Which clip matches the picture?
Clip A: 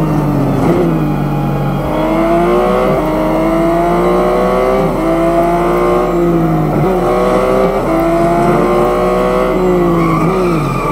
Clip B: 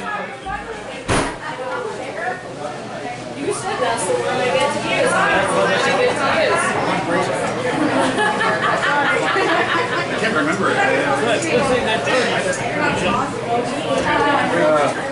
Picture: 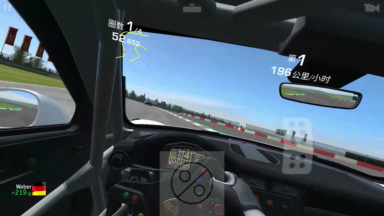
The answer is A